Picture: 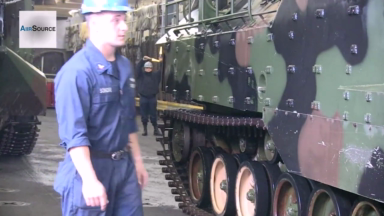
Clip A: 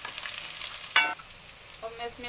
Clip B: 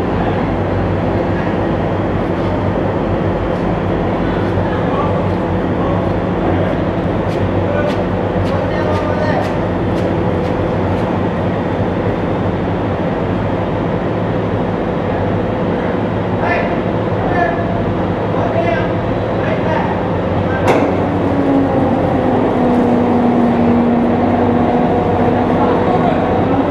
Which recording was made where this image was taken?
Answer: B